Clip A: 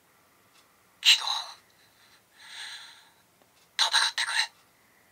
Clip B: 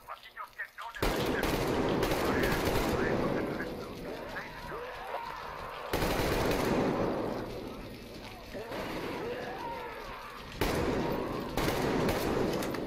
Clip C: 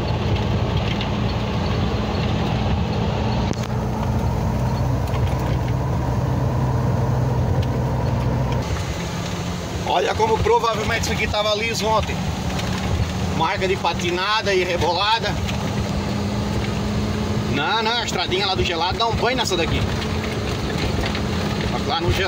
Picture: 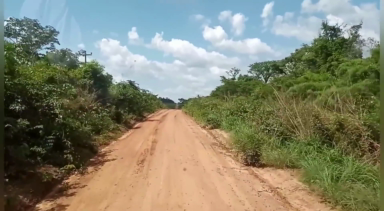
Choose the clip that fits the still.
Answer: C